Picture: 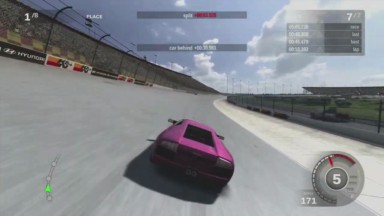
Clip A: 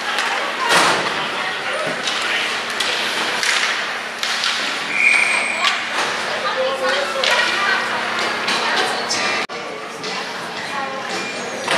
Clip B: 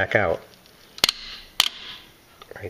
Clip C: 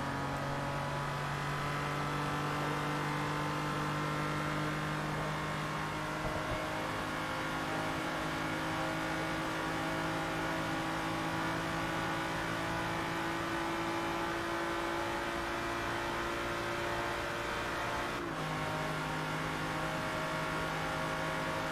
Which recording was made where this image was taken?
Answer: C